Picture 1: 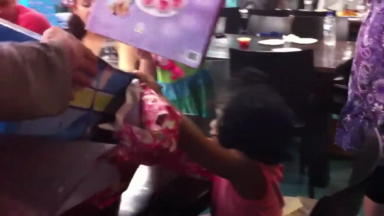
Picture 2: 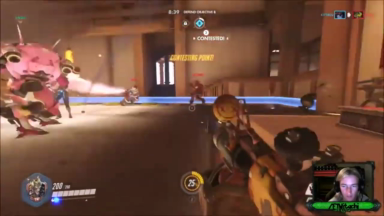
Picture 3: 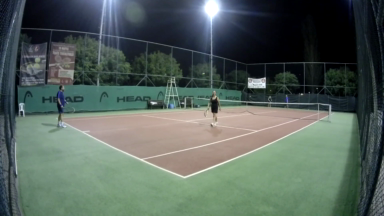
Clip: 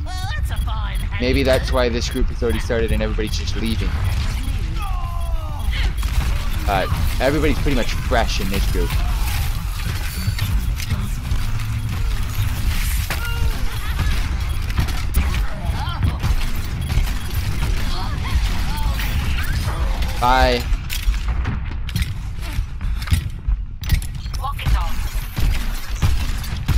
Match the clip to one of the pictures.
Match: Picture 2